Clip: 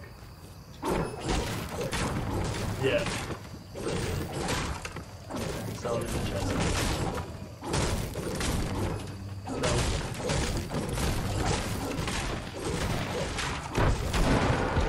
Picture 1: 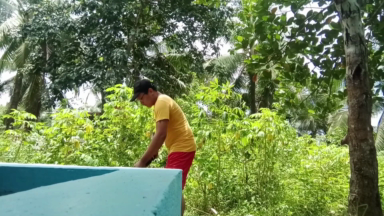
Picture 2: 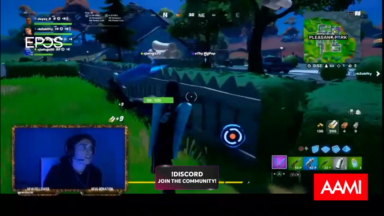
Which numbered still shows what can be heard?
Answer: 2